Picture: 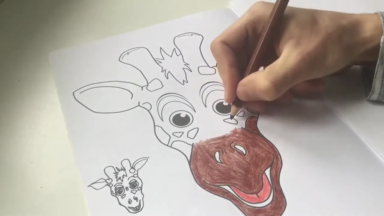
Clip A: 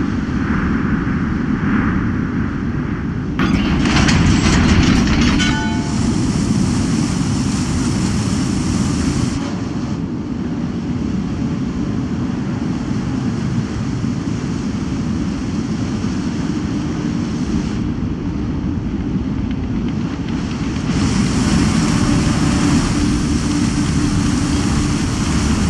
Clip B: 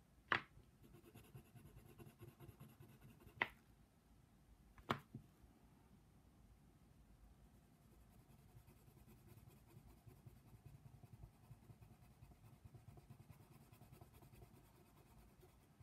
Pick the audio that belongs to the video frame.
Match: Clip B